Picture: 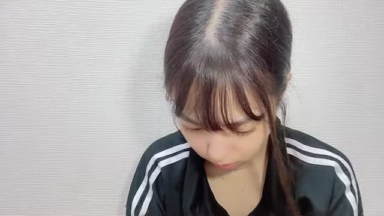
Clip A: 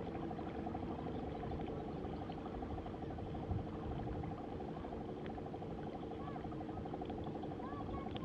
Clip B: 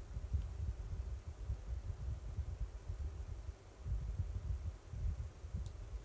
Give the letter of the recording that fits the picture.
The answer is B